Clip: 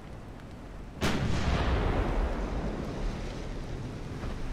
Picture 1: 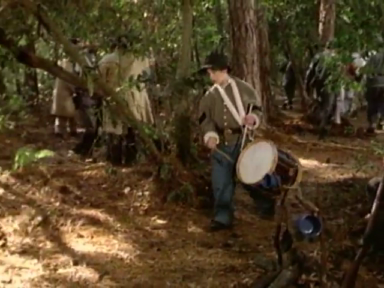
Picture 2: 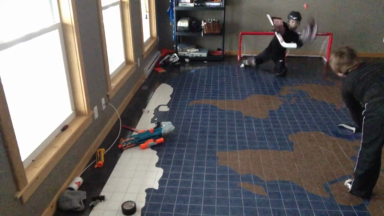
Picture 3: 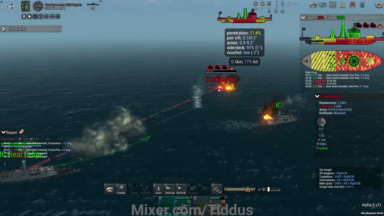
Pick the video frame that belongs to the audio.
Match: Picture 3